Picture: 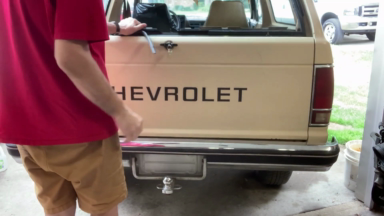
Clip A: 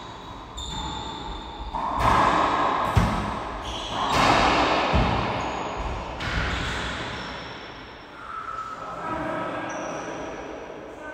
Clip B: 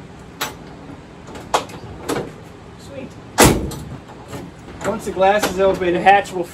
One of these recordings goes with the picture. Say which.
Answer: B